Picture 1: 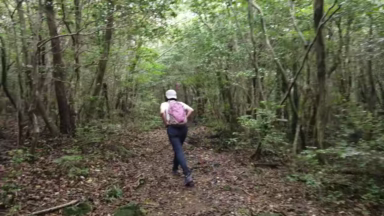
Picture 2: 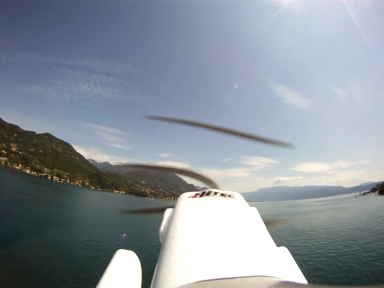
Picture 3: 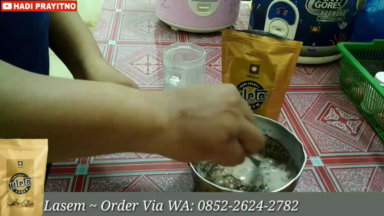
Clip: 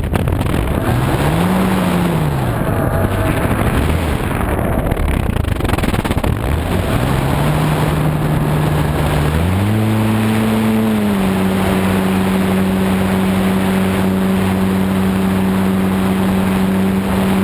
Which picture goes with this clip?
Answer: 2